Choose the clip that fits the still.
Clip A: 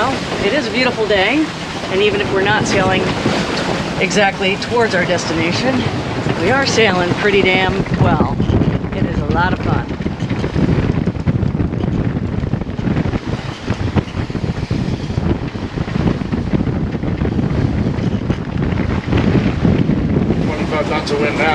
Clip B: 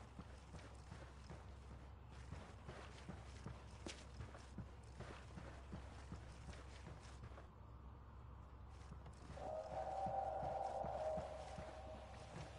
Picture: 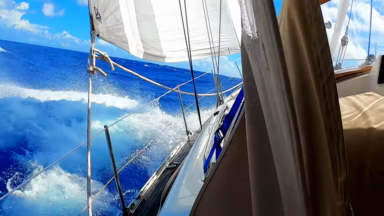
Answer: A